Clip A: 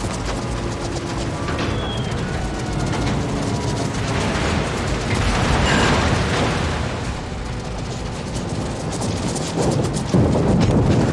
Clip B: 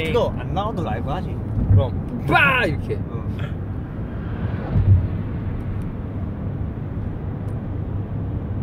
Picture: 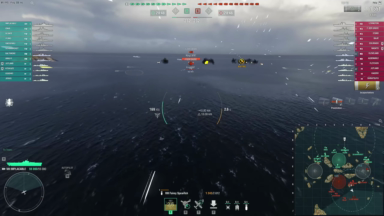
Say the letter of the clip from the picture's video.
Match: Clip A